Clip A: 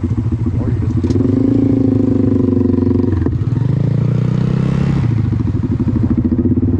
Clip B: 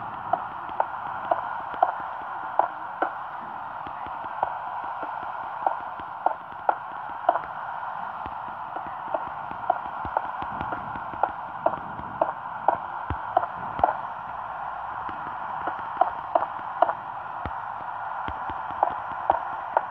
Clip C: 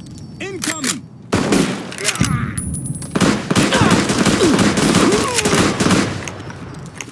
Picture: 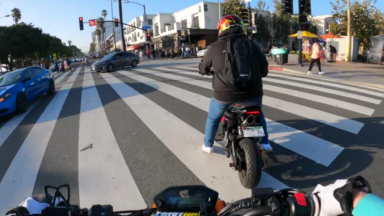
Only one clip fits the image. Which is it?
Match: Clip A